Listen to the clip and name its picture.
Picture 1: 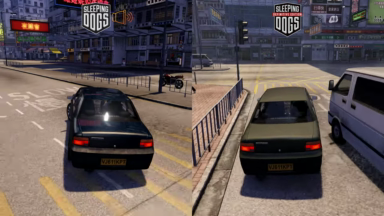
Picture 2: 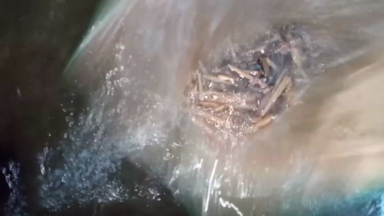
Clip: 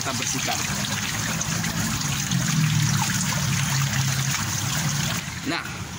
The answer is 2